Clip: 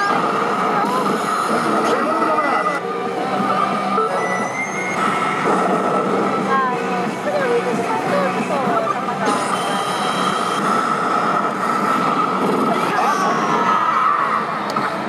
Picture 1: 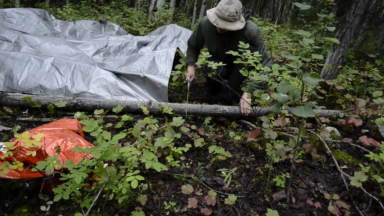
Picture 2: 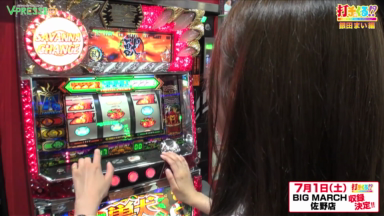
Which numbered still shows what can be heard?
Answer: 2